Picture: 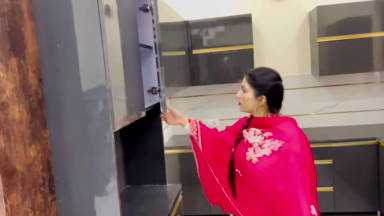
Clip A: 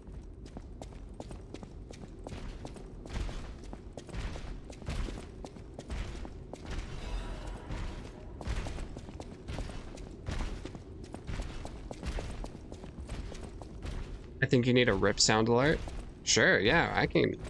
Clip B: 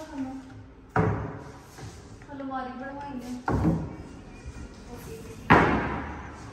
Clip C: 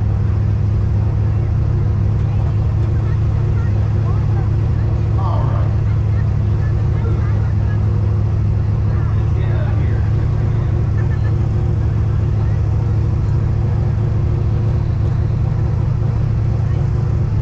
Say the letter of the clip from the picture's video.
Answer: B